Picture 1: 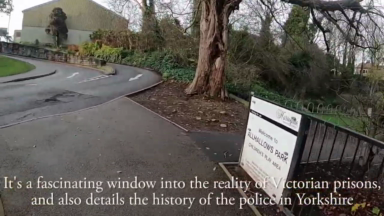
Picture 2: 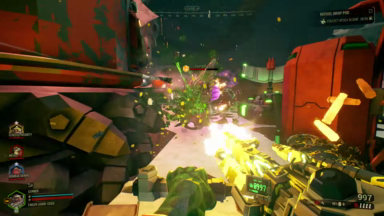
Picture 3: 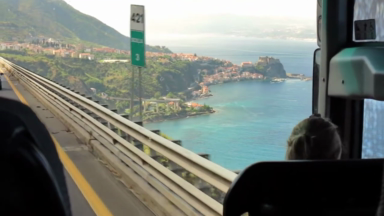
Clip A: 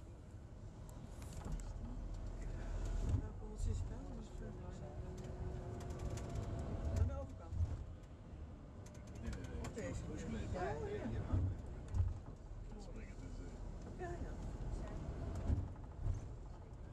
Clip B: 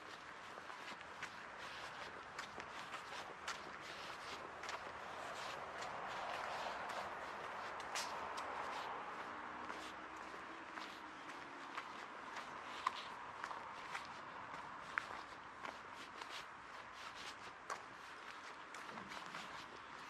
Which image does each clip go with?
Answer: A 3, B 1